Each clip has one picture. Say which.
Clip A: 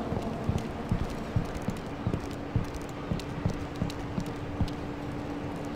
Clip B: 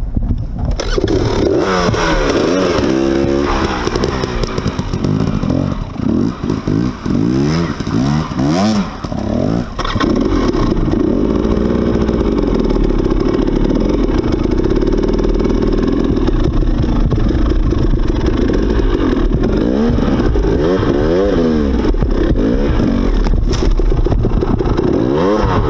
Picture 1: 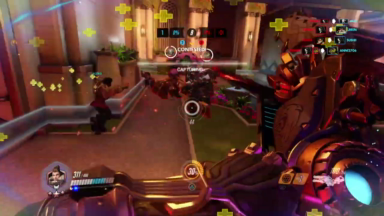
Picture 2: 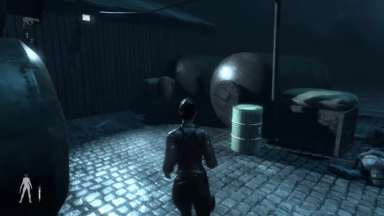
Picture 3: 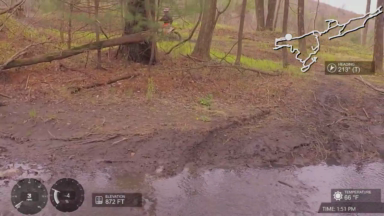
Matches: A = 2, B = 3